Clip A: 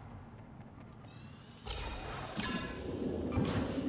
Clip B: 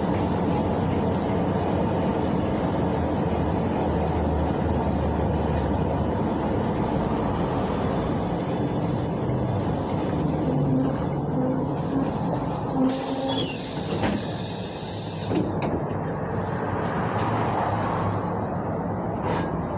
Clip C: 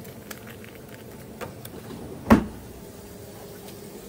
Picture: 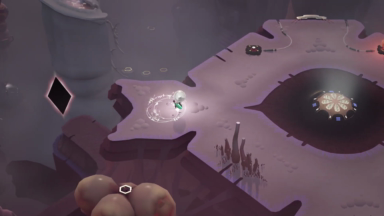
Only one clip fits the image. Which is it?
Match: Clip A